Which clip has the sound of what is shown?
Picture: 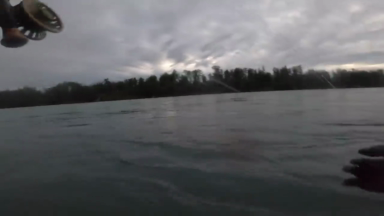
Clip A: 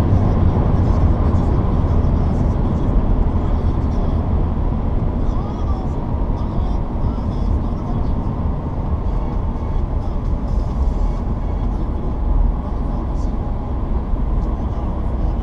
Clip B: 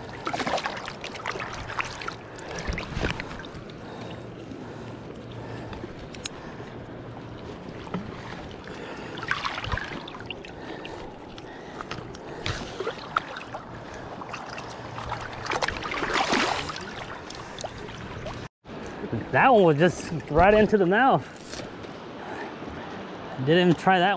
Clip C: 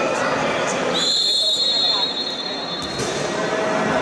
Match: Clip B